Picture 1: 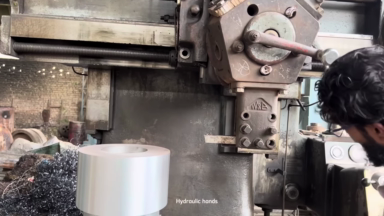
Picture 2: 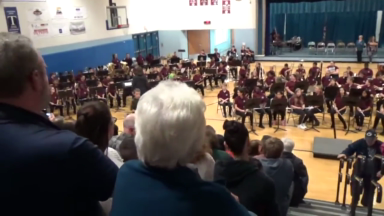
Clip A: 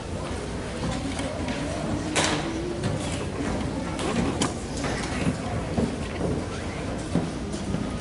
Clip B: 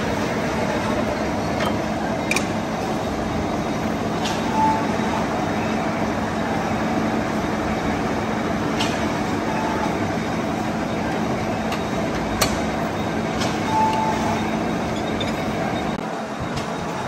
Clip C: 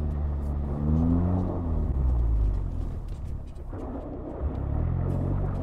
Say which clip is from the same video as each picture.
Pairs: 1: B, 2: A